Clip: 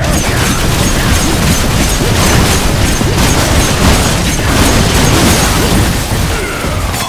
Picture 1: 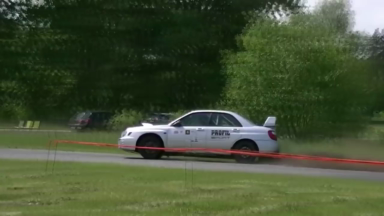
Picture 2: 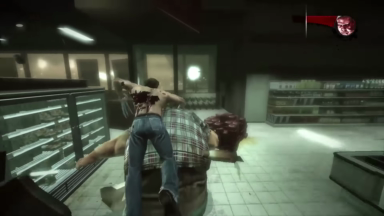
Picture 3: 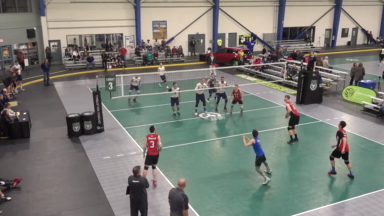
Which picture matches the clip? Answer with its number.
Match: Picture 2